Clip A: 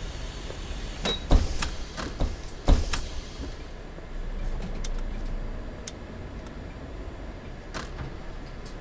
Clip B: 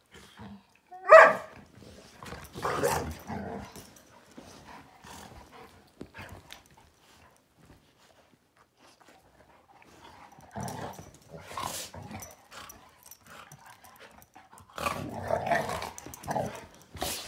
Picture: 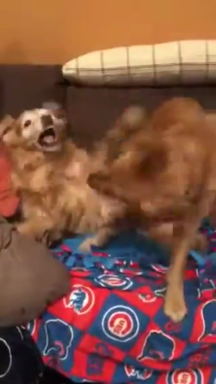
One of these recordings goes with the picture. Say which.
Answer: B